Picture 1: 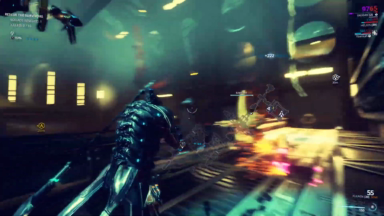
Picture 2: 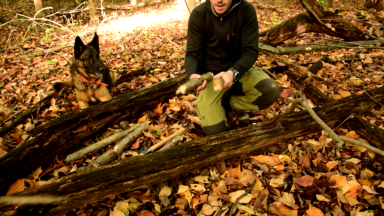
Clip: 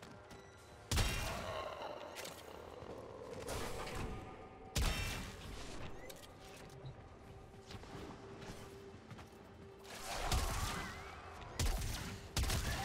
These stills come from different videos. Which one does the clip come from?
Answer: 1